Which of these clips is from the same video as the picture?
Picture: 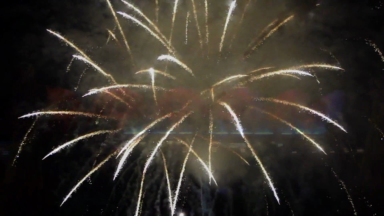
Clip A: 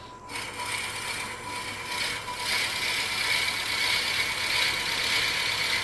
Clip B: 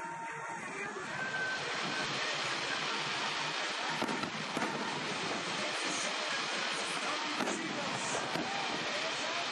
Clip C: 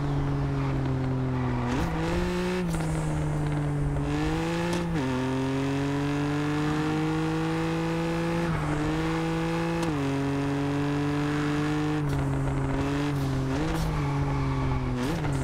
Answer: B